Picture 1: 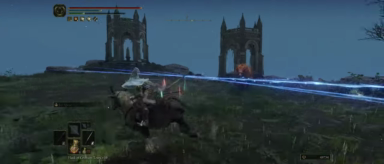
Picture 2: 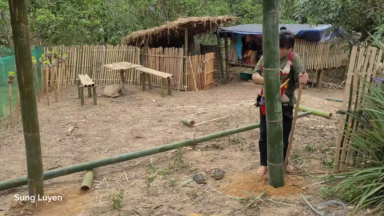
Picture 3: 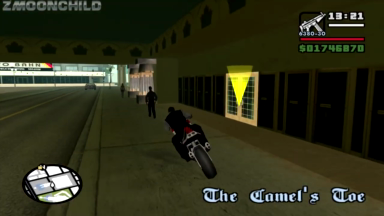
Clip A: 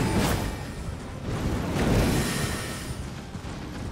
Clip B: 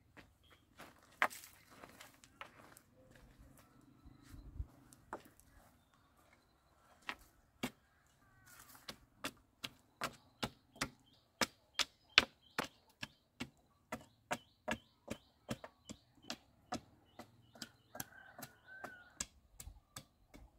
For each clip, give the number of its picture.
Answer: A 1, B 2